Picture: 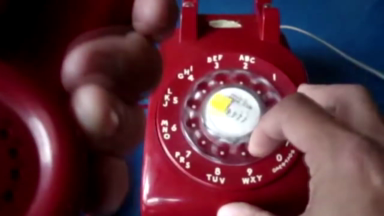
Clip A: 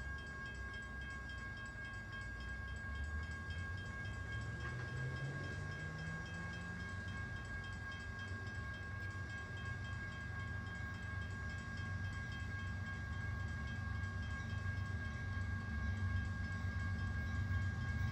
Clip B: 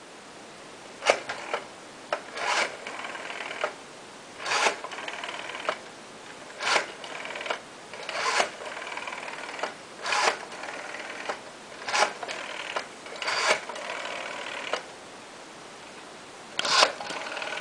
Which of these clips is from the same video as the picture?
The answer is B